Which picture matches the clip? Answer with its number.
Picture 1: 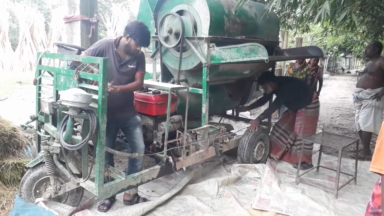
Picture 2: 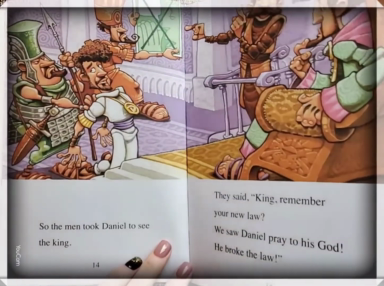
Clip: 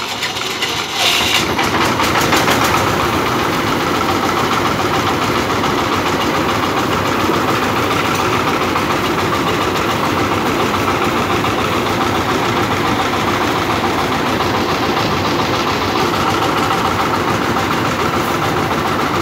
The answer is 1